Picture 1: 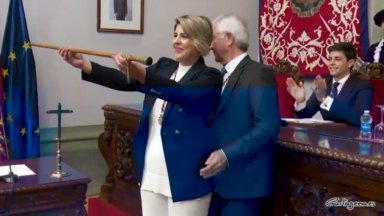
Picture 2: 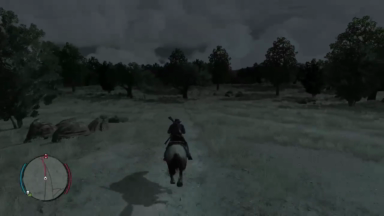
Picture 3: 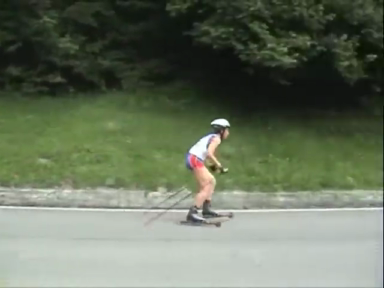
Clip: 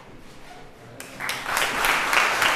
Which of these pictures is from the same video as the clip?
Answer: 1